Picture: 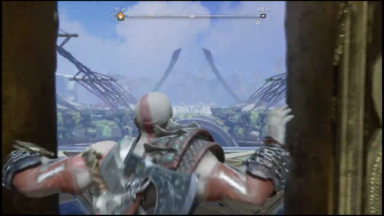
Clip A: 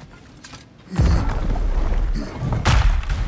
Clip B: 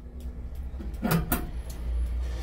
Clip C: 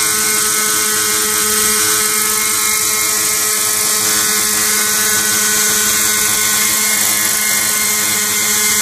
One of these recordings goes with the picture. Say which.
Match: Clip A